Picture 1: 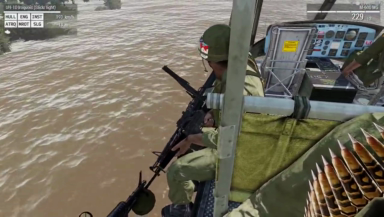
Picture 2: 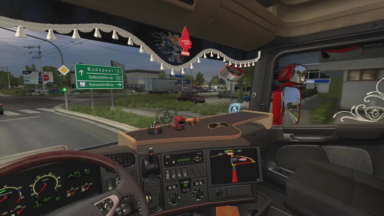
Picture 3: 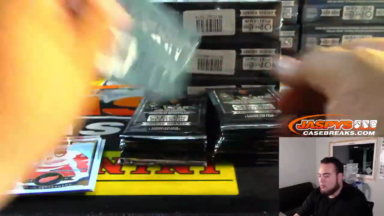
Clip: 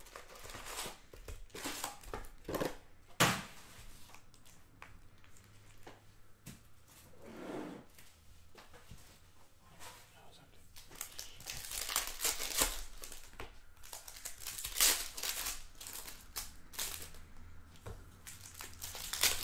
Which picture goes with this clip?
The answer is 3